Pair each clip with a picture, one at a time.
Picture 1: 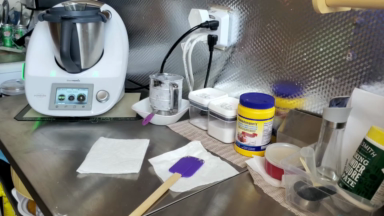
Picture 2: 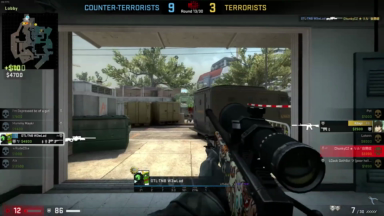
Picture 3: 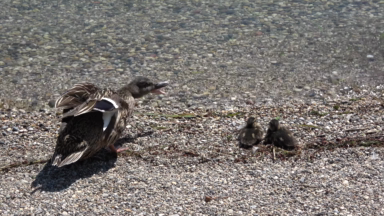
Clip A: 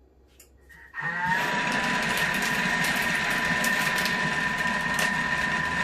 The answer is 1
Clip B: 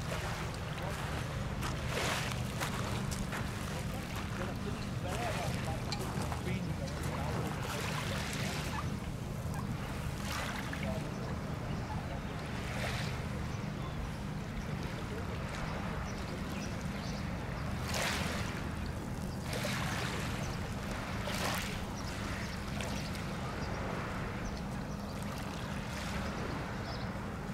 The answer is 3